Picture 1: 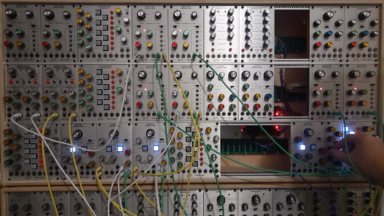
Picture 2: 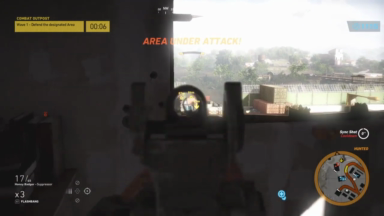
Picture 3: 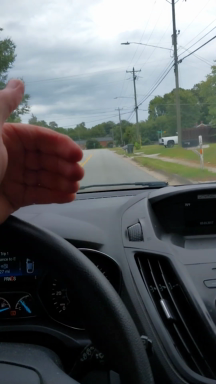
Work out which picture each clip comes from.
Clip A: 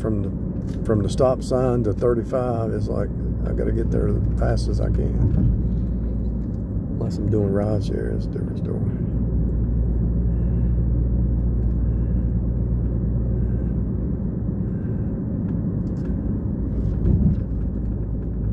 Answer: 3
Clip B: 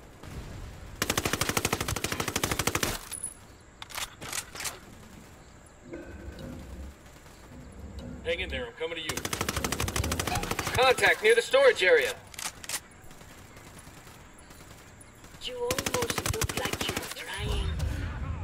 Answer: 2